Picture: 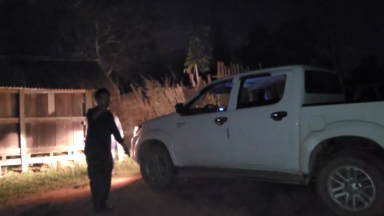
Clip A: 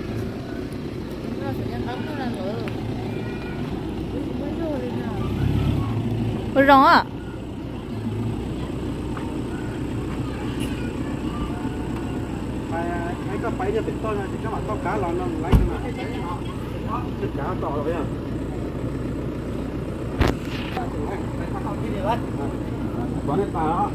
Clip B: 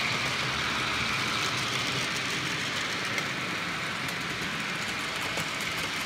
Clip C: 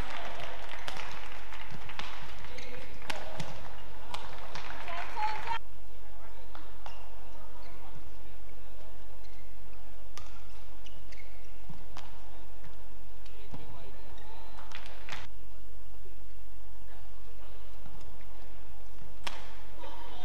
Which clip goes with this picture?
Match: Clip A